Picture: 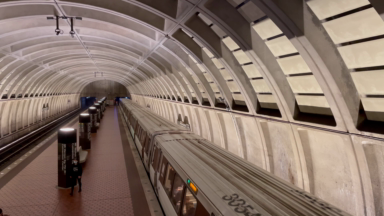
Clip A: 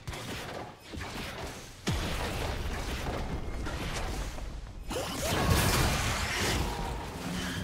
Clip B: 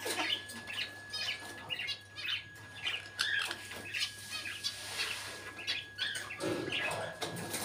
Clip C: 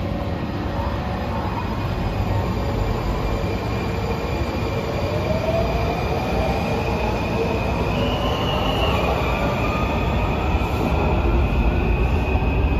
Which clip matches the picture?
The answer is C